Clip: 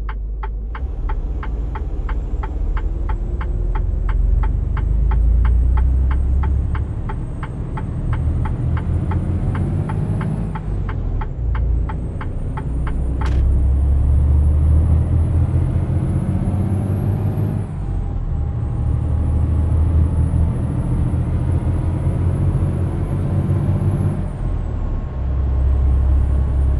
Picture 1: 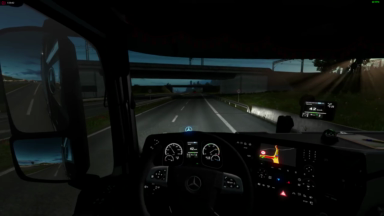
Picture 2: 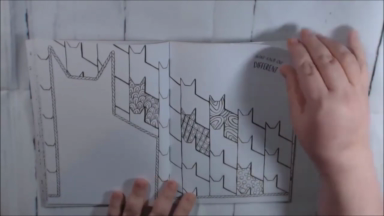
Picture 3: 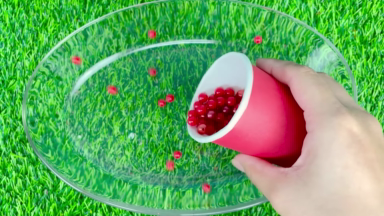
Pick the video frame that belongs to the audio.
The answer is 1